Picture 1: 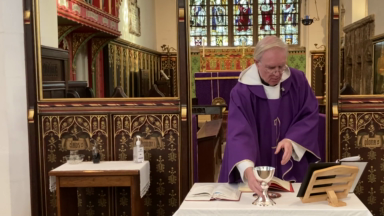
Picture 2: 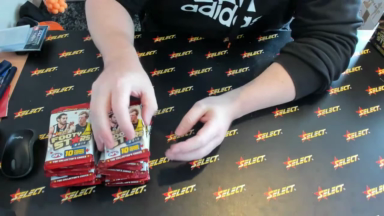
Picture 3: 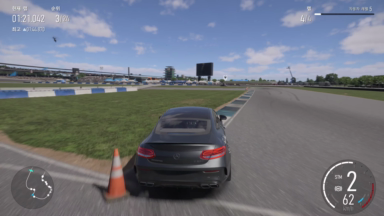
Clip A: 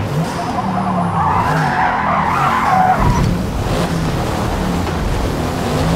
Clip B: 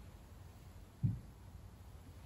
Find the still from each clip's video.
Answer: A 3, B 1